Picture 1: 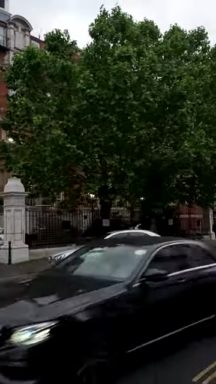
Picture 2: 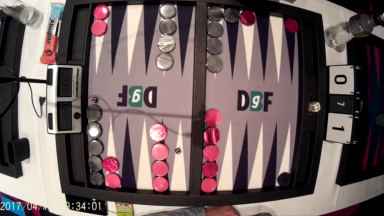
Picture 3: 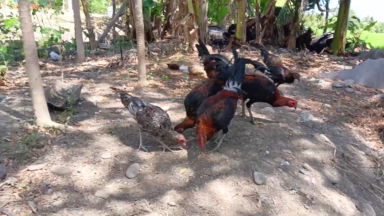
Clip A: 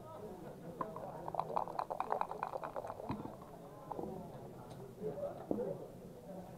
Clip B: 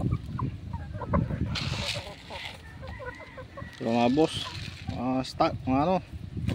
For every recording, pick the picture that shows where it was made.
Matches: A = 2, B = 3